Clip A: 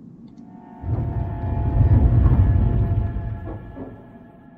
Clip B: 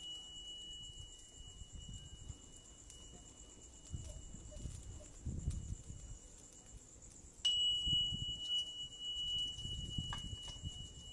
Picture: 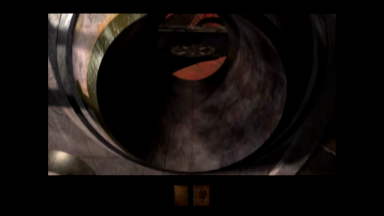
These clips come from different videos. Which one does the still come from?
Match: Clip A